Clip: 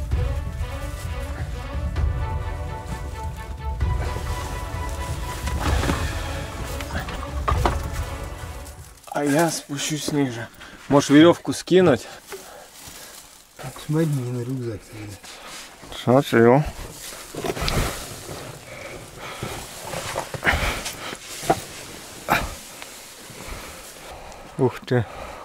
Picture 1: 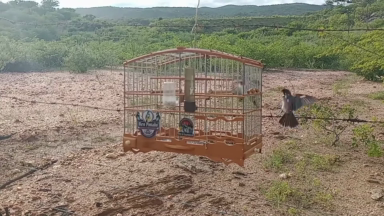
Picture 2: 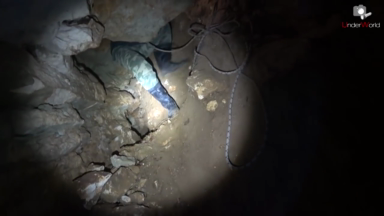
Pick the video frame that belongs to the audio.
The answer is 2